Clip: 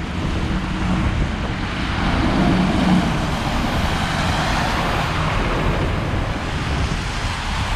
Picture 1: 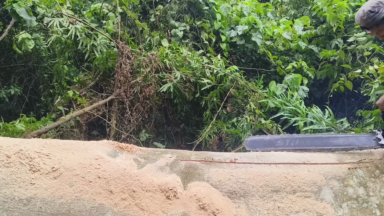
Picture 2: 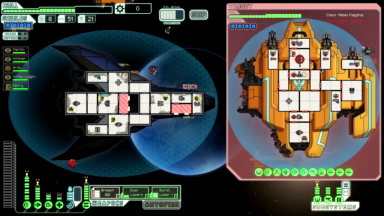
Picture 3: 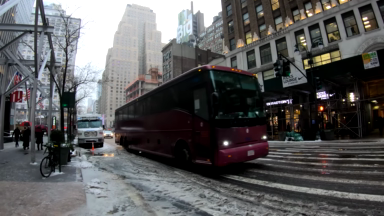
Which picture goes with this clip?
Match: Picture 3